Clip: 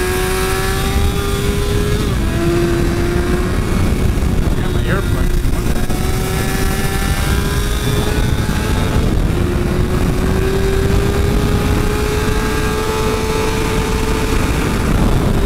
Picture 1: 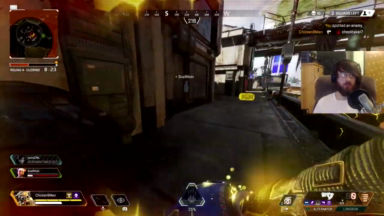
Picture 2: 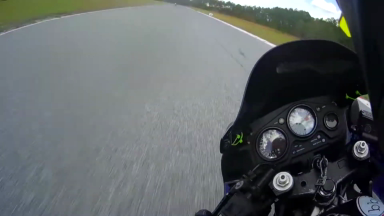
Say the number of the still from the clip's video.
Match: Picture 2